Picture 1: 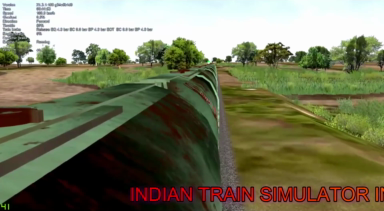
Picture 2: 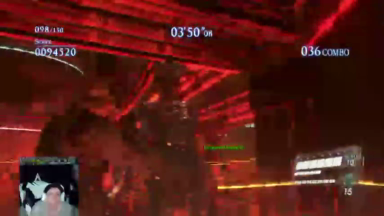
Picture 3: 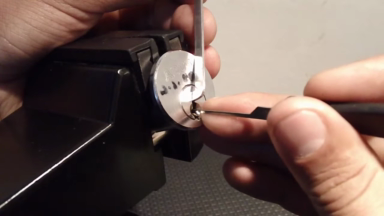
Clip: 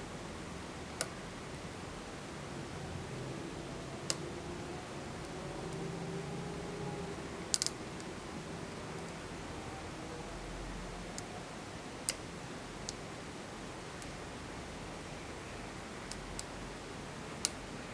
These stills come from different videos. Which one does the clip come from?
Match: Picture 3